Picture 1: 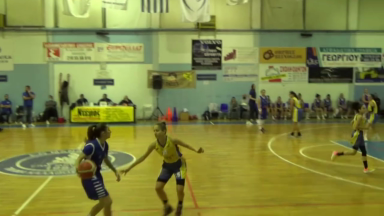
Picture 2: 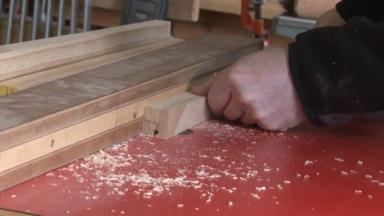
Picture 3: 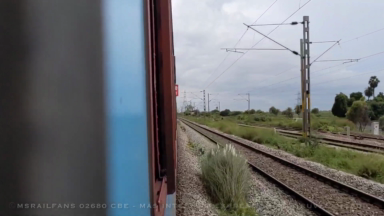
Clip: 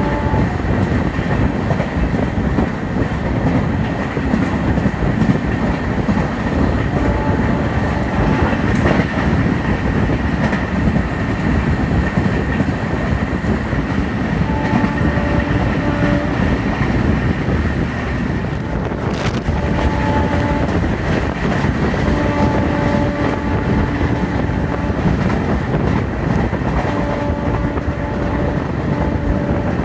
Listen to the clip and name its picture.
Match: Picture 3